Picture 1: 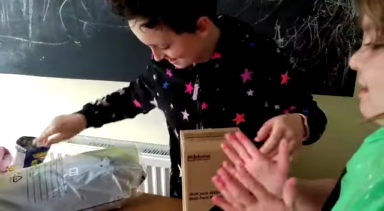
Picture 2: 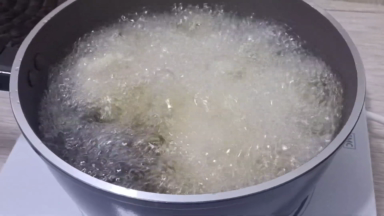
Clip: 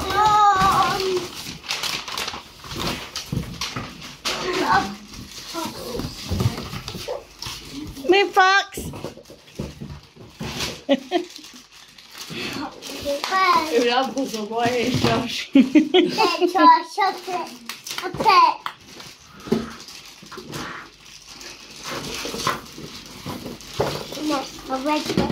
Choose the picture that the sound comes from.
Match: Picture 1